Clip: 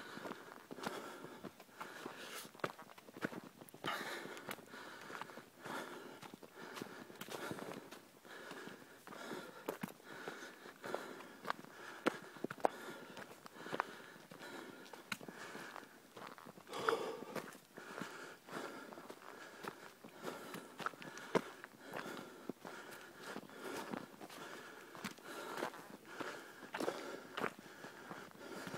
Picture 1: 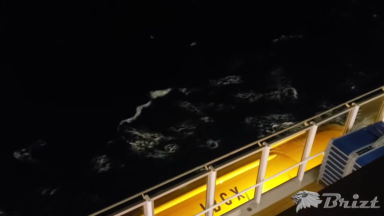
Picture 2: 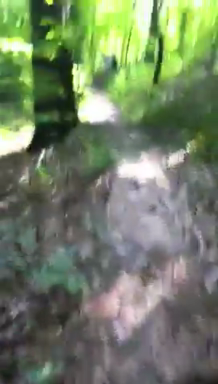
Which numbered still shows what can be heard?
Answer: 2